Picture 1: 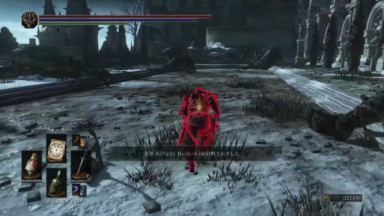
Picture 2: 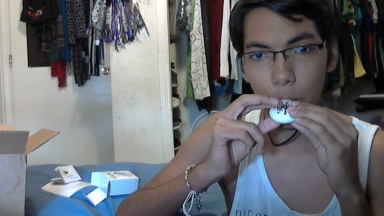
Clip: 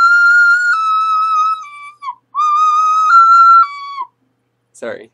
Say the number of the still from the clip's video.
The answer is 2